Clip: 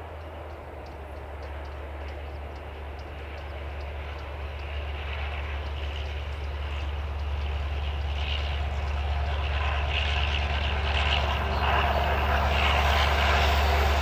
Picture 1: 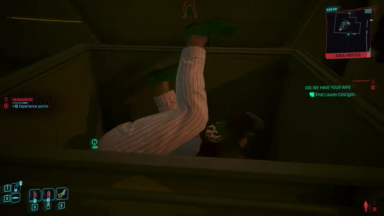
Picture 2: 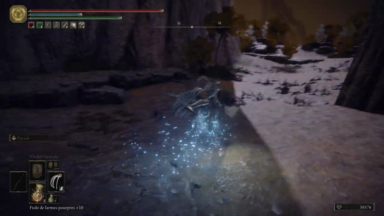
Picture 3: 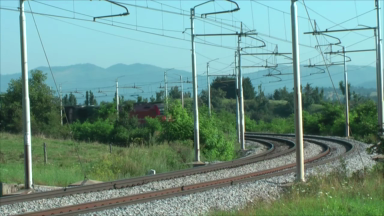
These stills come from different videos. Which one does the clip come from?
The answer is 3